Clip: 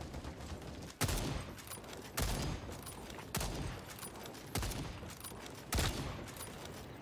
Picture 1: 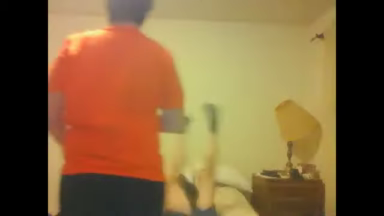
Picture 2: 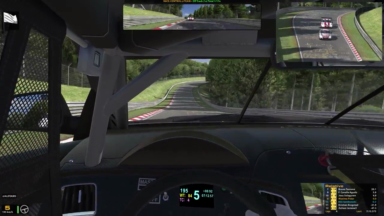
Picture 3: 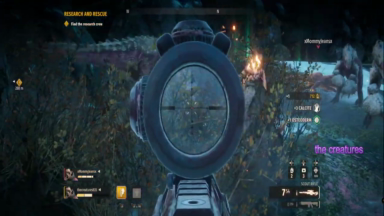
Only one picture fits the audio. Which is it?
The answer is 3